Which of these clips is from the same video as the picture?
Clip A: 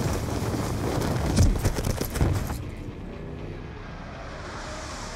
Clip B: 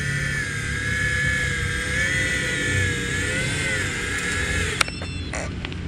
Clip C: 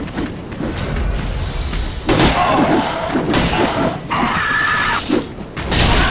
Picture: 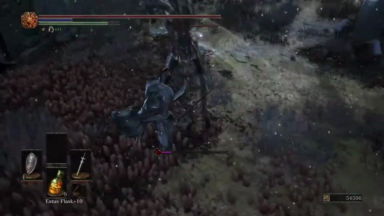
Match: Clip C